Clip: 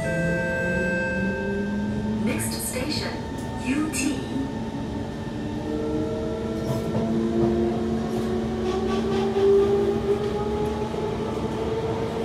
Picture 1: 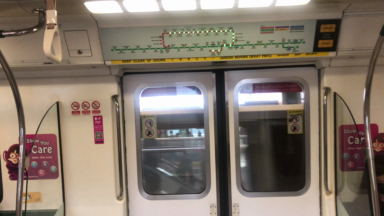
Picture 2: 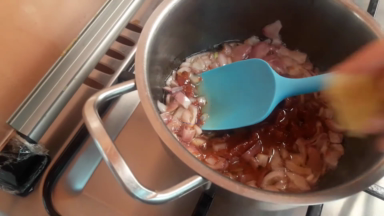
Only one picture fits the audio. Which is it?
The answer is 1